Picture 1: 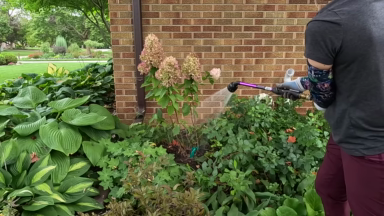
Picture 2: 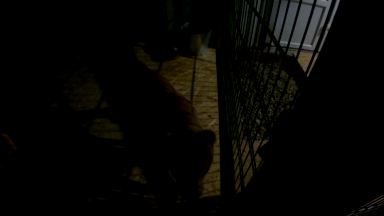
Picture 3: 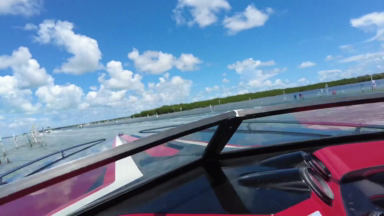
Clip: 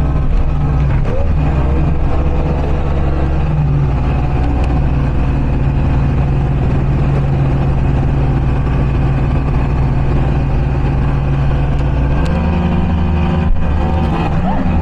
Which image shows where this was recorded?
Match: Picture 3